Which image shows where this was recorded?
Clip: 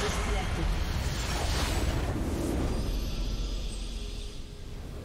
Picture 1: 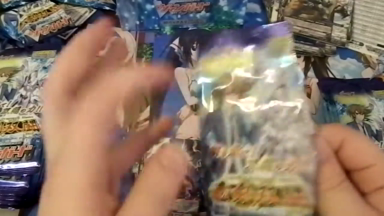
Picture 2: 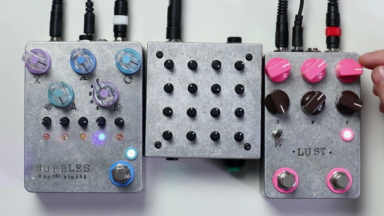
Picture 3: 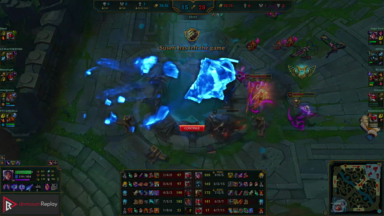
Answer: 3